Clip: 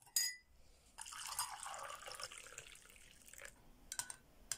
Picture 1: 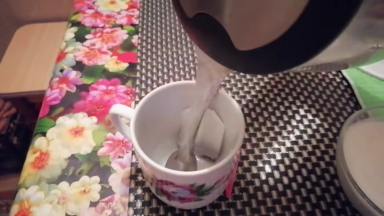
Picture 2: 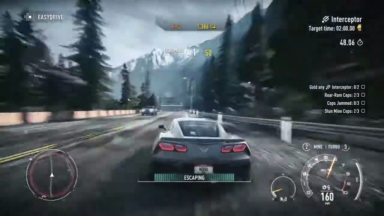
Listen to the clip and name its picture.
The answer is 1